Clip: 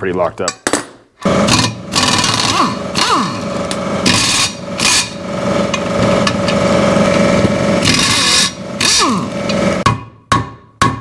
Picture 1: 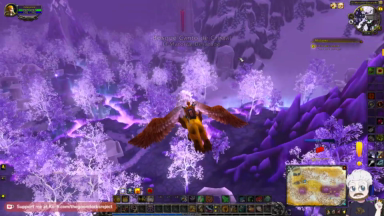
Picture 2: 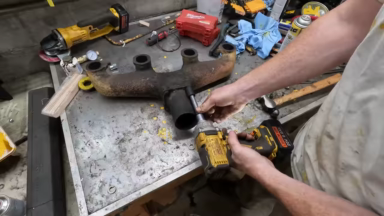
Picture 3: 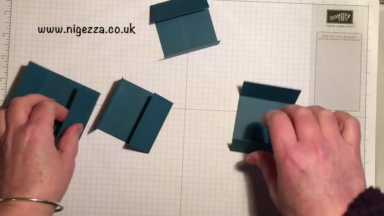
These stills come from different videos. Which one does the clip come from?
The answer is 2